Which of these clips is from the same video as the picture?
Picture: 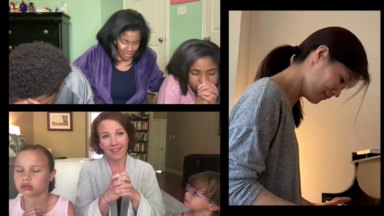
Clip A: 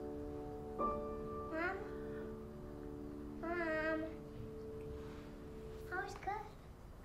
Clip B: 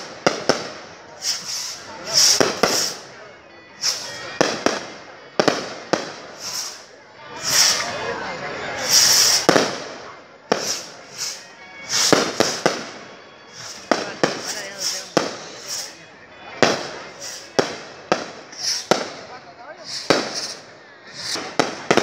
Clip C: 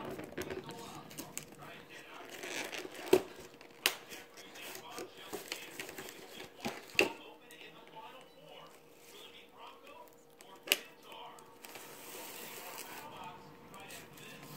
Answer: A